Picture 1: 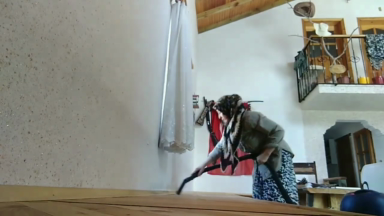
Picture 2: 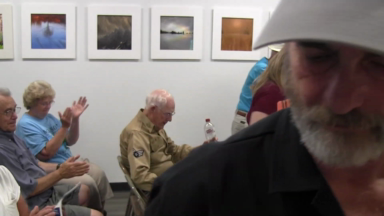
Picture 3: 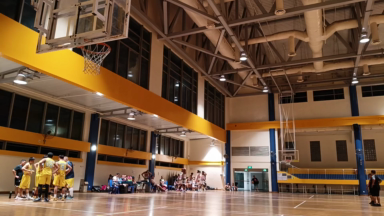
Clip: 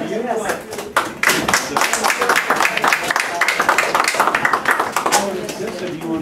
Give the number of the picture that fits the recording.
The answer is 2